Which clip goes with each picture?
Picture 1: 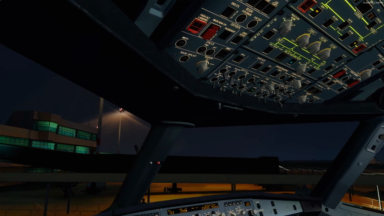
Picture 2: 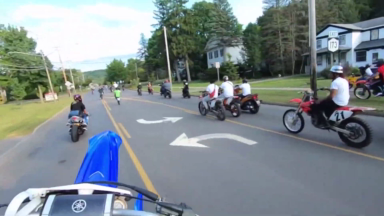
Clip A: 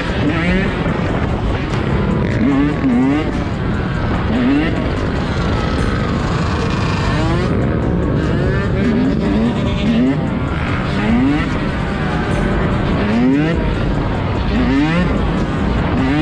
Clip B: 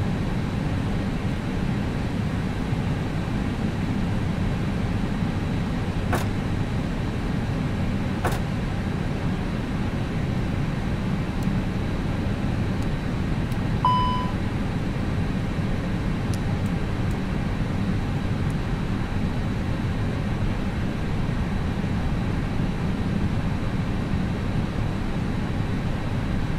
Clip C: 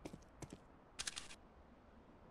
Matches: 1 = B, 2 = A